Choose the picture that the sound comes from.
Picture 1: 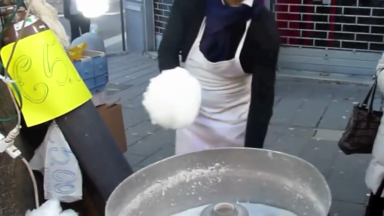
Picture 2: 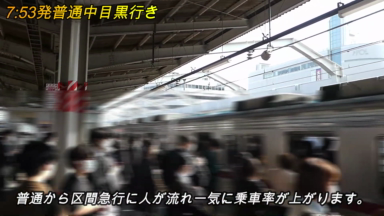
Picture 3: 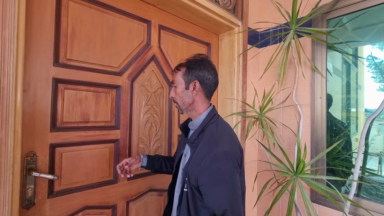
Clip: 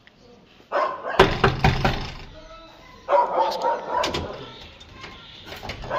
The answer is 3